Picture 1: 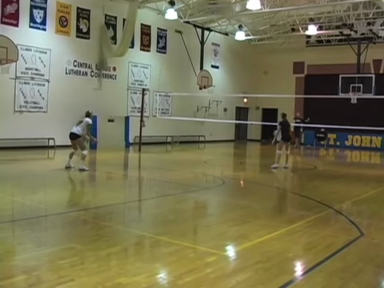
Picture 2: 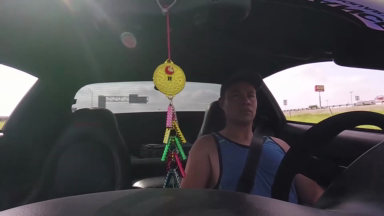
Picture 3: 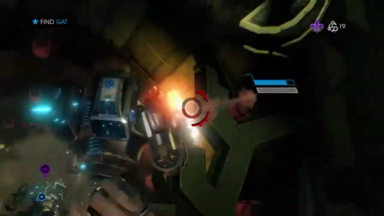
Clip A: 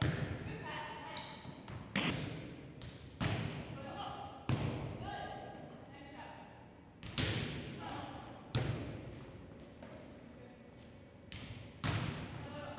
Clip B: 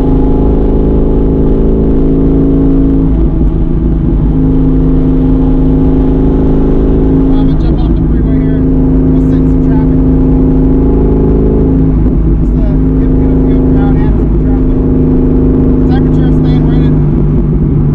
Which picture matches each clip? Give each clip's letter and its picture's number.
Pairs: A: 1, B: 2